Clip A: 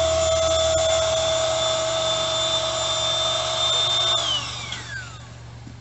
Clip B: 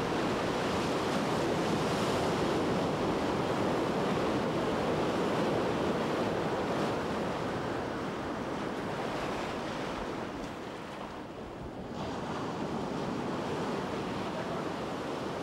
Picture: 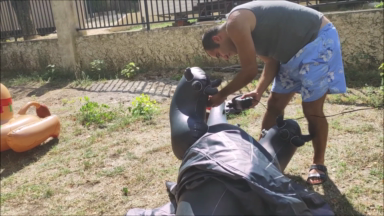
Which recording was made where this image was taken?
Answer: A